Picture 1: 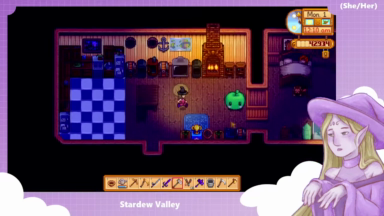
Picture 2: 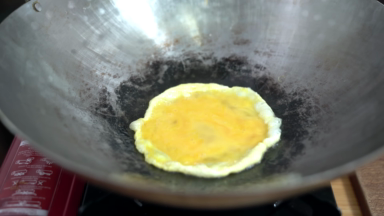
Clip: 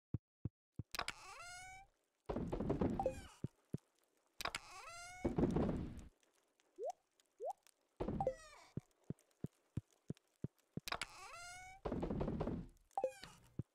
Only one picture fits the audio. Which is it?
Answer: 1